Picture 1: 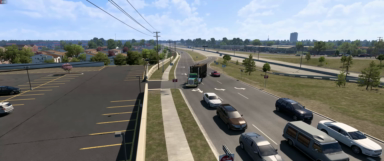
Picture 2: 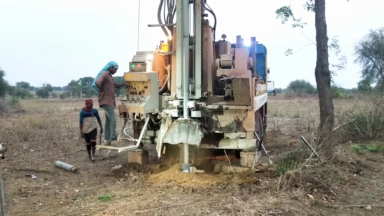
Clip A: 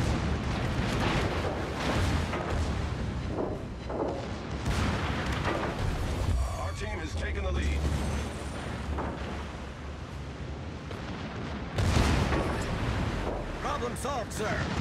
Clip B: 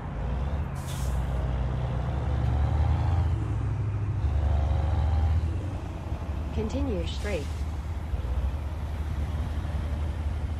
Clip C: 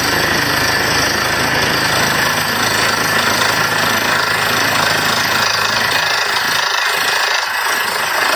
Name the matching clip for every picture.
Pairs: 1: B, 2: C